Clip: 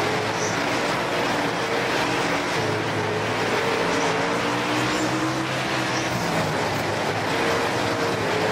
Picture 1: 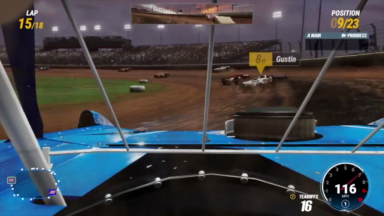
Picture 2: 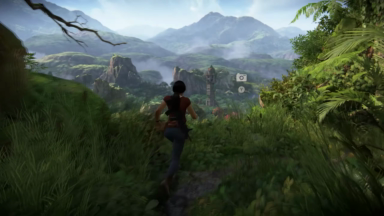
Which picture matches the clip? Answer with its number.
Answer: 1